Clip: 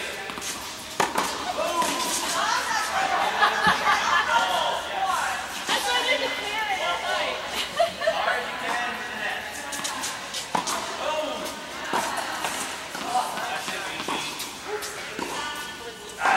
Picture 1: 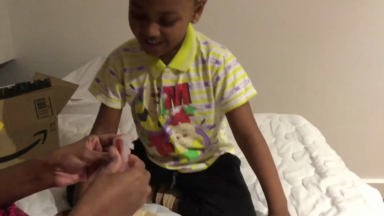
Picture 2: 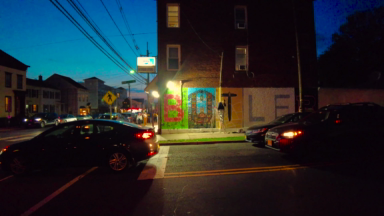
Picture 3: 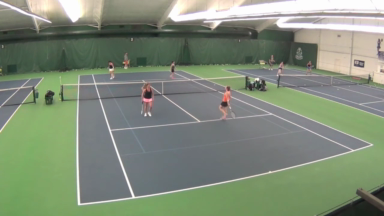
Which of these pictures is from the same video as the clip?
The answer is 3